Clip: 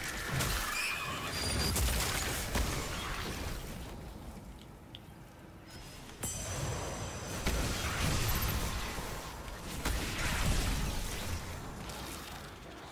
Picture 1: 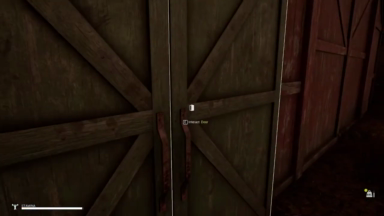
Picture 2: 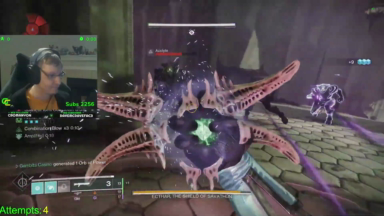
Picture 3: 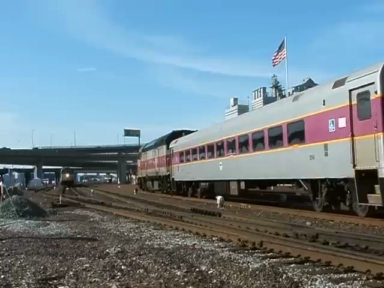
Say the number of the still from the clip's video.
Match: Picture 2